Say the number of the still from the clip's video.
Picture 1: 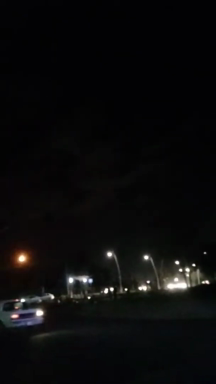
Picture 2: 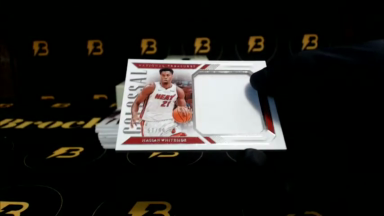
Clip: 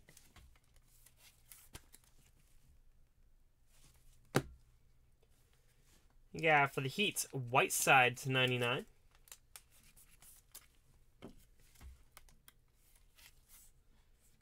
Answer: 2